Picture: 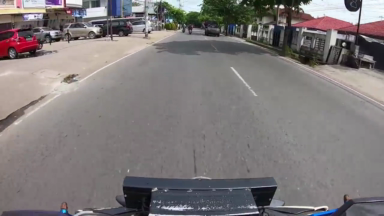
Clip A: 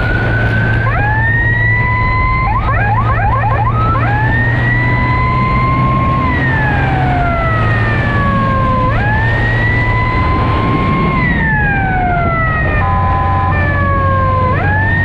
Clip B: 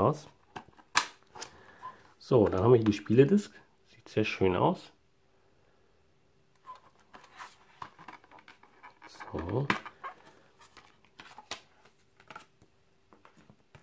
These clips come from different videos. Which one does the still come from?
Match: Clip A